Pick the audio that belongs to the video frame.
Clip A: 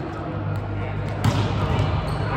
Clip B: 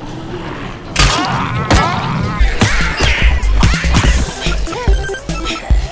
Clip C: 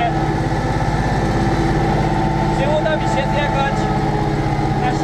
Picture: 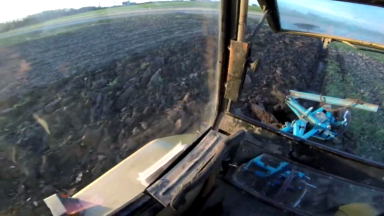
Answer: C